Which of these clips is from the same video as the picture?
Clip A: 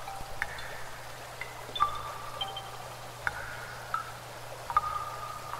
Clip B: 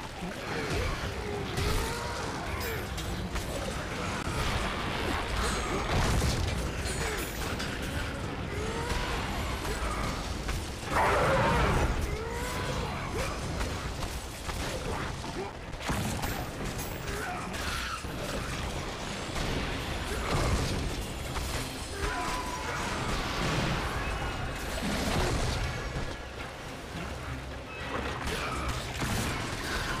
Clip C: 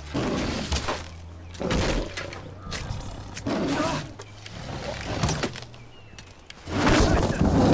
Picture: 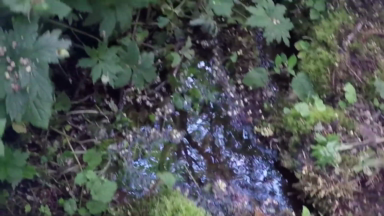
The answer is A